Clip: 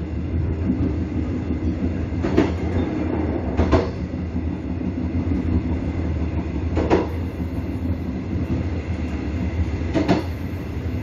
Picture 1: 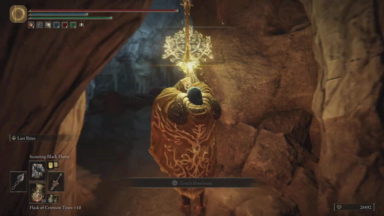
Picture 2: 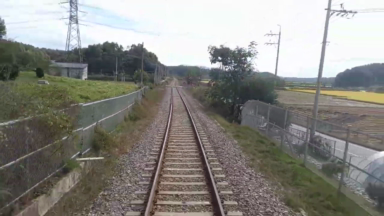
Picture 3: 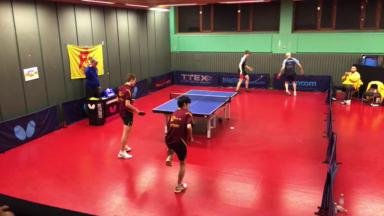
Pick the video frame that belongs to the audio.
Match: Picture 2